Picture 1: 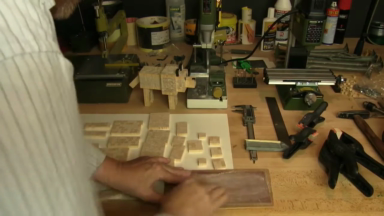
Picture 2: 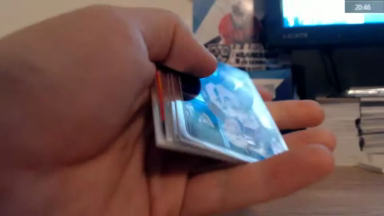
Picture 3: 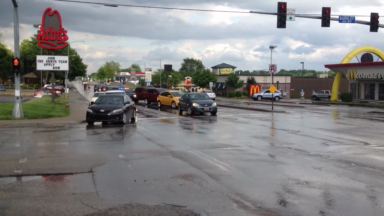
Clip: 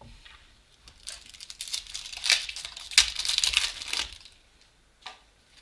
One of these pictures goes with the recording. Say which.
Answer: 2